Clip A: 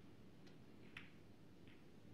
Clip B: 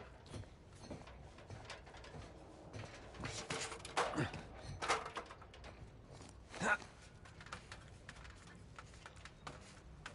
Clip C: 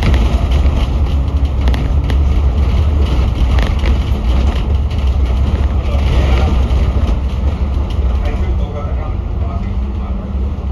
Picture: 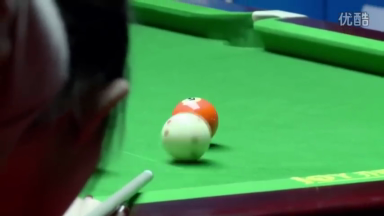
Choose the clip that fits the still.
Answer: A